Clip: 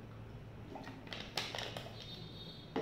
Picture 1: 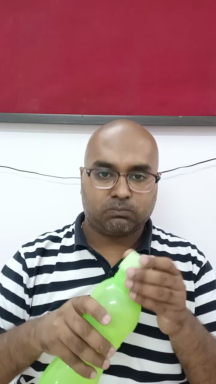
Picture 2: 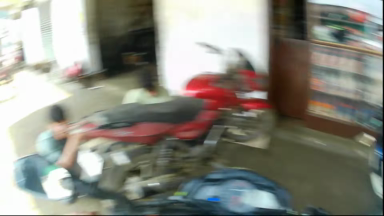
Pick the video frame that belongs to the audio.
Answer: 1